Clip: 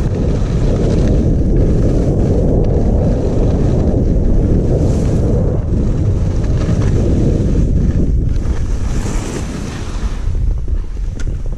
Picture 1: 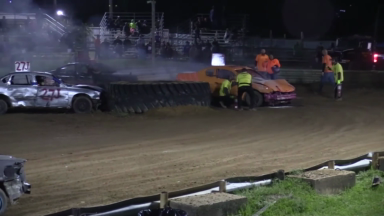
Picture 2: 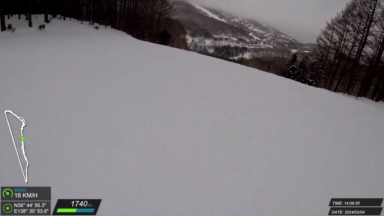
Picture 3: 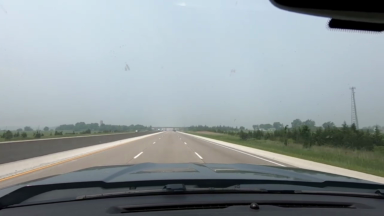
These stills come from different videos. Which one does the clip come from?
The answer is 2